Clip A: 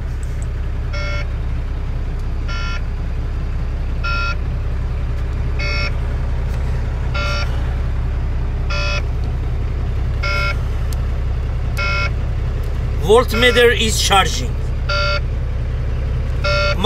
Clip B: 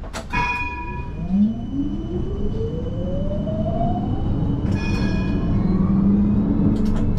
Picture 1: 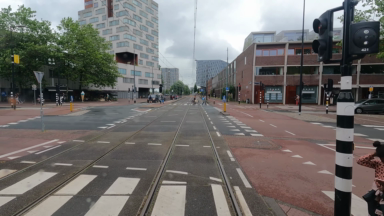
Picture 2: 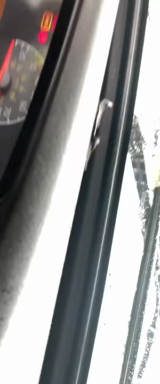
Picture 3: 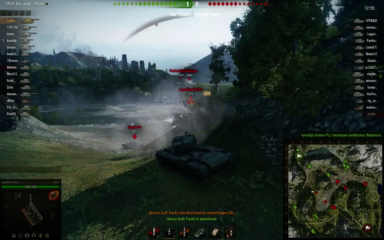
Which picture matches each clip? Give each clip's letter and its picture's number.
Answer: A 2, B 1